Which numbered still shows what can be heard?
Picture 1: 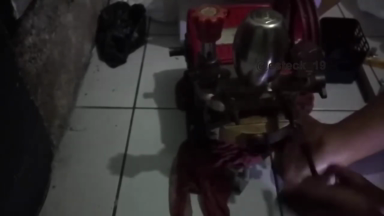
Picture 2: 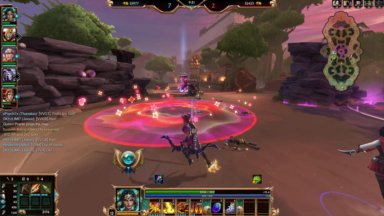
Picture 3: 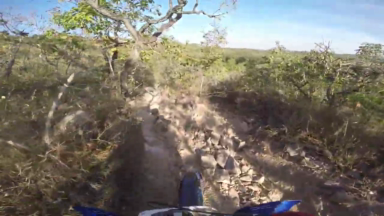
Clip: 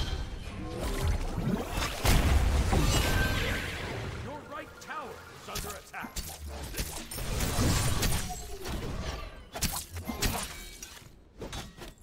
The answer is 2